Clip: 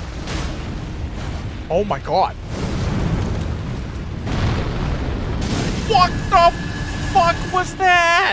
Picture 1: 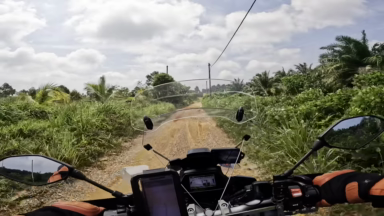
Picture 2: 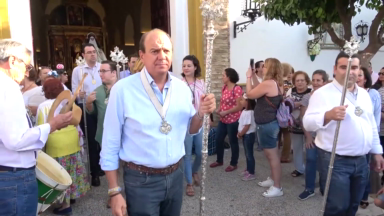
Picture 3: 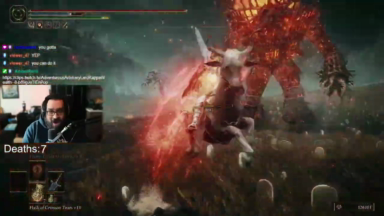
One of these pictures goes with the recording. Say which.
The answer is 3